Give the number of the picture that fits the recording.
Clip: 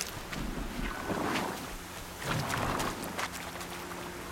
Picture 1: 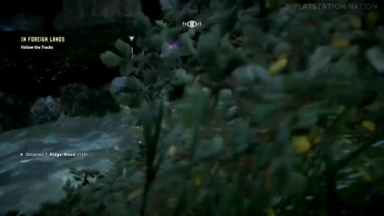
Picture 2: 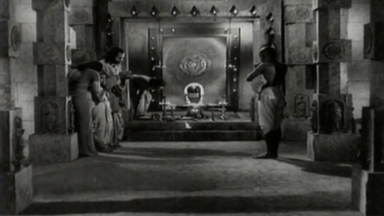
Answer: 1